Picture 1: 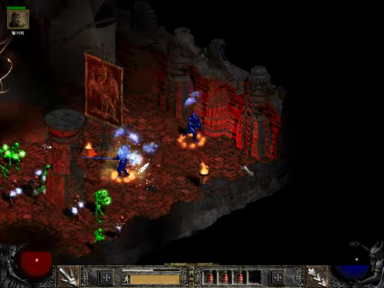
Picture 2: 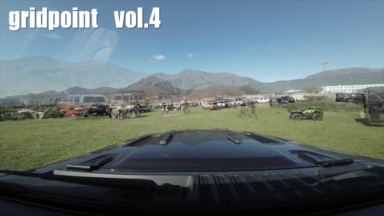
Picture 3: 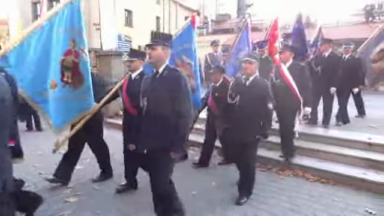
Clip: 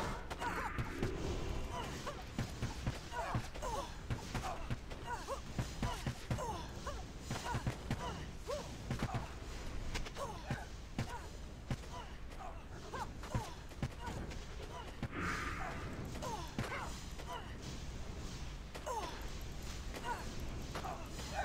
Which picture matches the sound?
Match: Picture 1